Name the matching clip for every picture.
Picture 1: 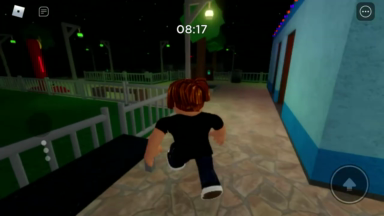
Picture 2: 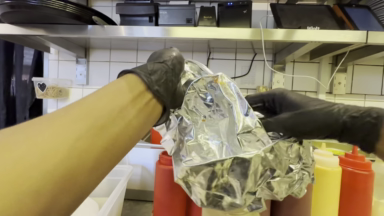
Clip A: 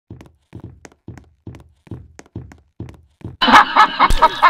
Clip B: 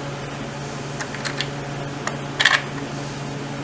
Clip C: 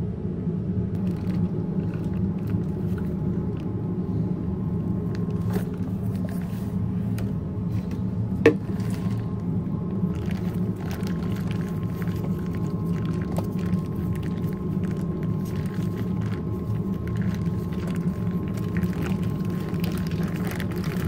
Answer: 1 A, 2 C